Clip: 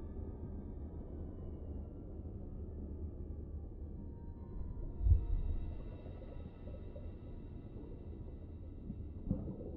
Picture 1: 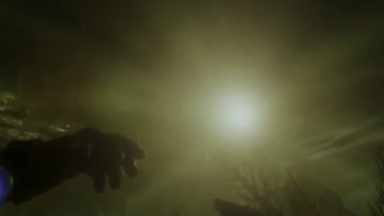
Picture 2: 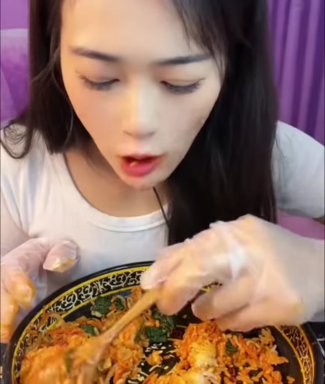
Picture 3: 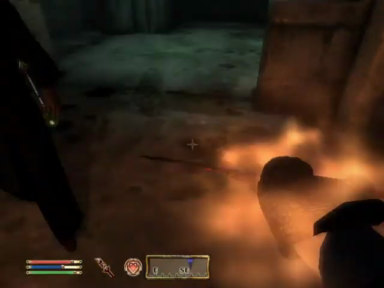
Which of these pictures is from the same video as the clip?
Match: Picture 1